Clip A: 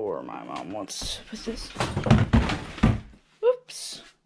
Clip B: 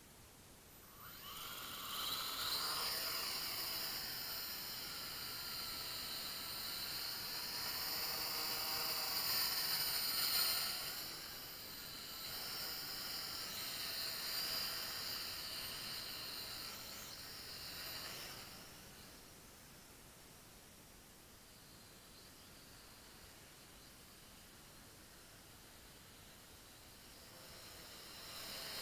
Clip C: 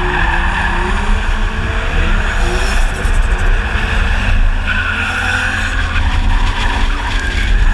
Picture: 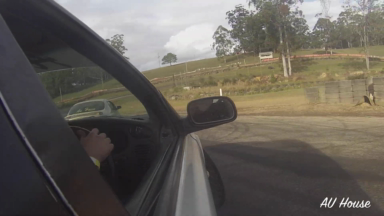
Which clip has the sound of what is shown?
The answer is C